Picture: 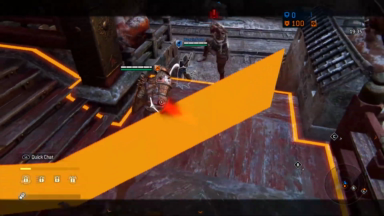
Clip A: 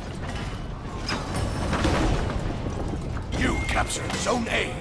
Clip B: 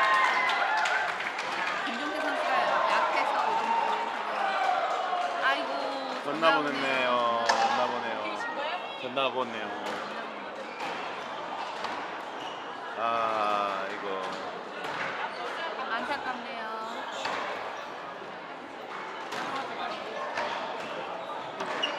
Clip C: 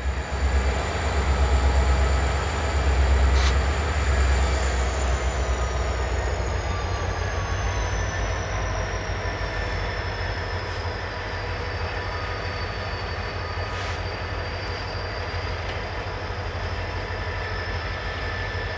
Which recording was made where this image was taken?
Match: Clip A